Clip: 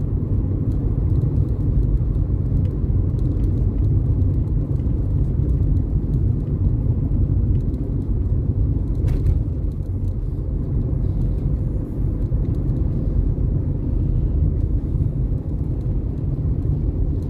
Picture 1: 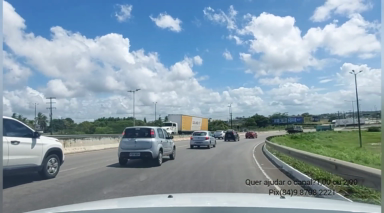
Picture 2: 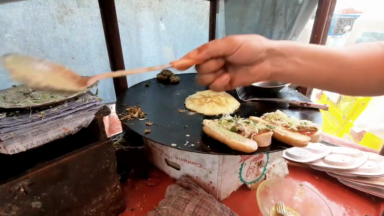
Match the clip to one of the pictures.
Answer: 1